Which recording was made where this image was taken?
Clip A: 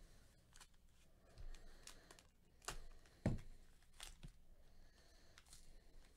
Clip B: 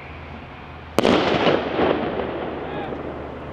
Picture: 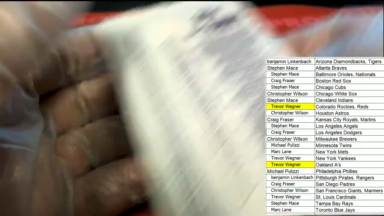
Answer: A